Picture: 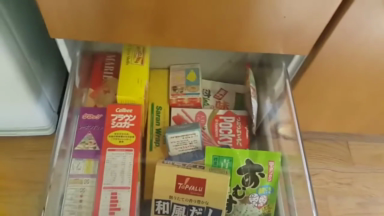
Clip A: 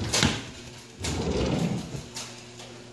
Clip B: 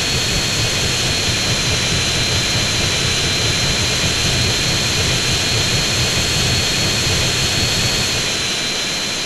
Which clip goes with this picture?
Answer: A